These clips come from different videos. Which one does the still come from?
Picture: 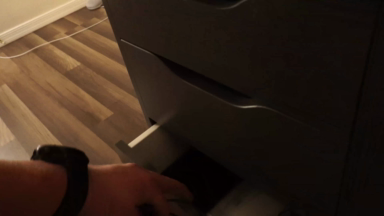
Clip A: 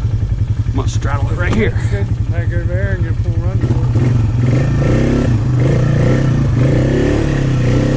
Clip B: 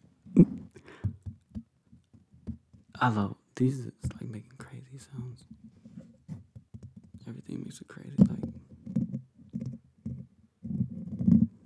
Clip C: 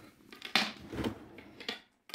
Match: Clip C